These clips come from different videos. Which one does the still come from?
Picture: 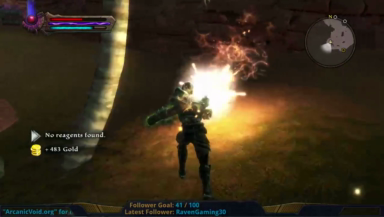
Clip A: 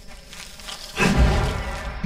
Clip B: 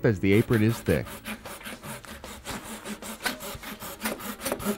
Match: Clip A